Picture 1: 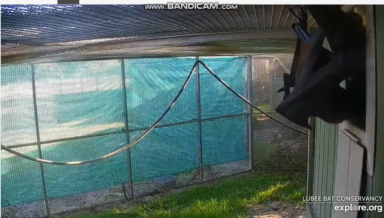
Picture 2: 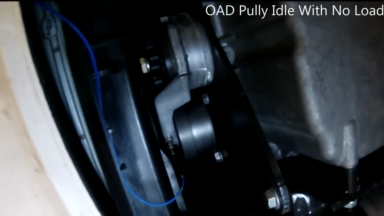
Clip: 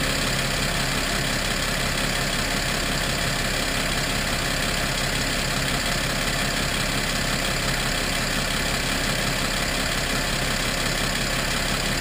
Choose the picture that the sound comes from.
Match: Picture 2